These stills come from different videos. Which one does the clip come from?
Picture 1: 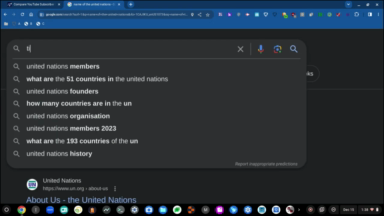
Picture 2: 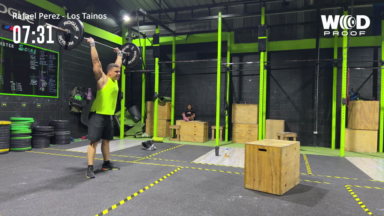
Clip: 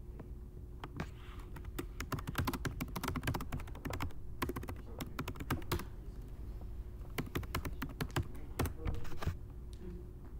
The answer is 1